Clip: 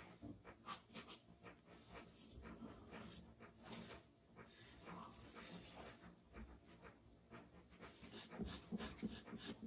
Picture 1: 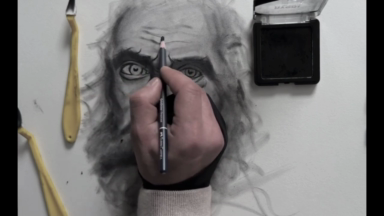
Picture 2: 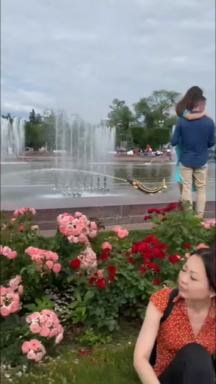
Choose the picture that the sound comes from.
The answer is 1